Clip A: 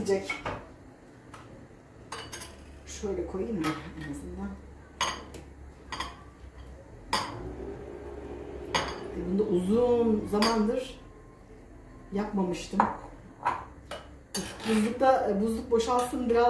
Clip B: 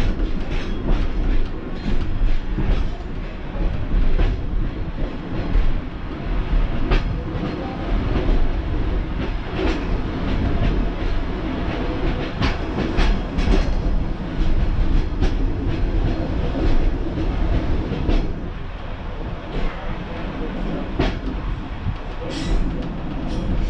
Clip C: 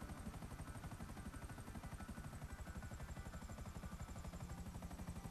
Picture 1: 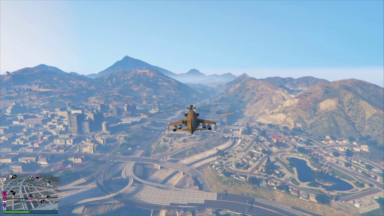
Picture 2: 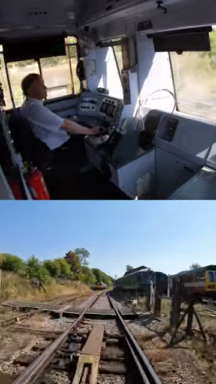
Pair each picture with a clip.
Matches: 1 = C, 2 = B